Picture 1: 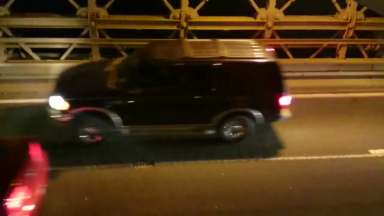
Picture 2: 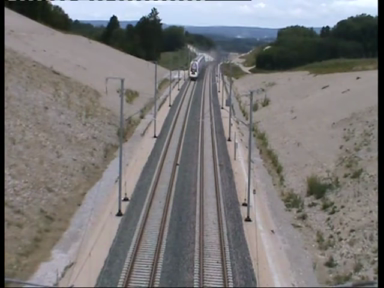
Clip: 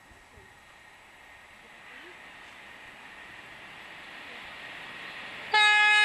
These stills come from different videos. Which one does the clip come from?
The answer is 2